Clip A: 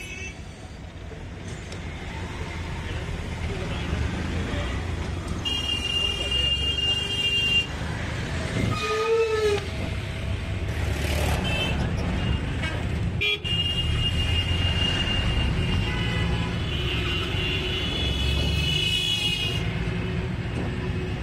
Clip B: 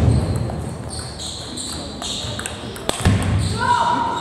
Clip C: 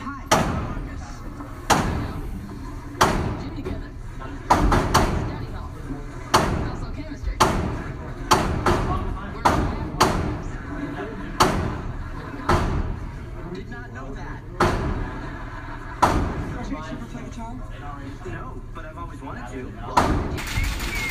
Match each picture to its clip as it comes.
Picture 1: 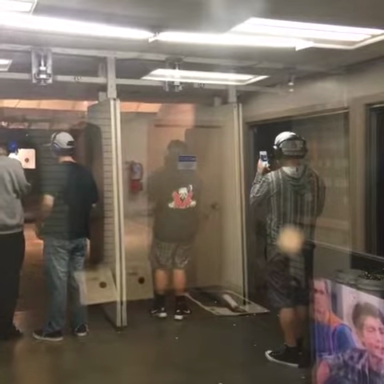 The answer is C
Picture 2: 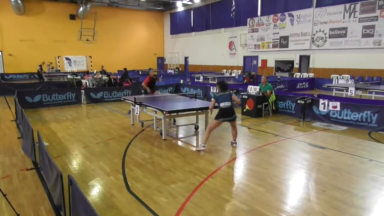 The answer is B